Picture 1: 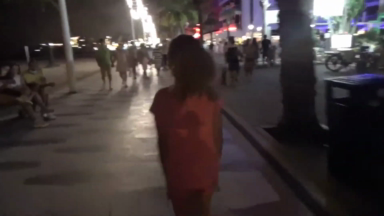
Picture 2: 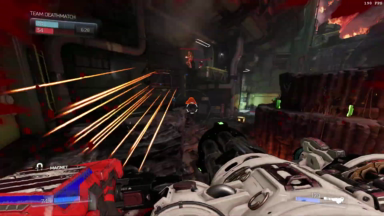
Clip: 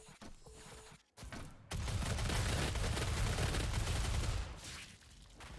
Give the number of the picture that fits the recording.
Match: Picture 2